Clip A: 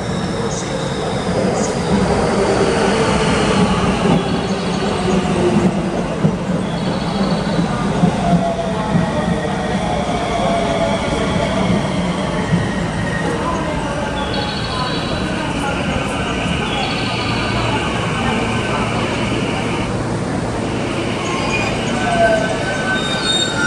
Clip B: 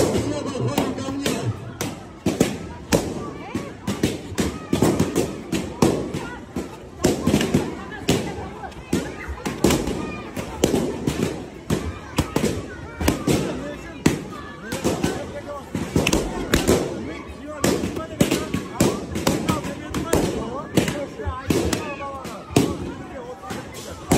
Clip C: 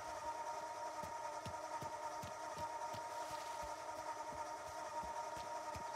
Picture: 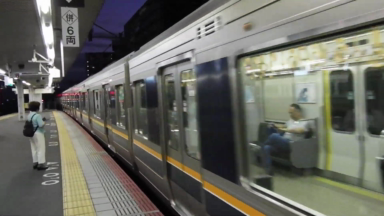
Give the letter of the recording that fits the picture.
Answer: A